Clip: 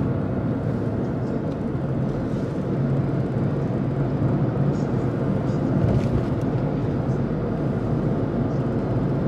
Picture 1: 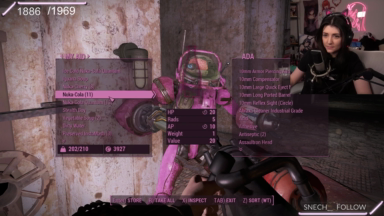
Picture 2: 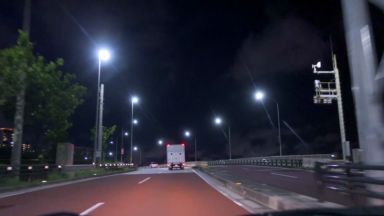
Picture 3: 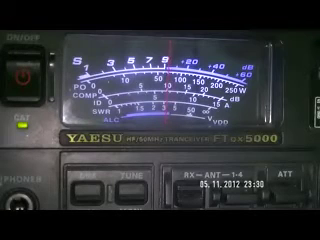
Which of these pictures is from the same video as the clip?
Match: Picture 2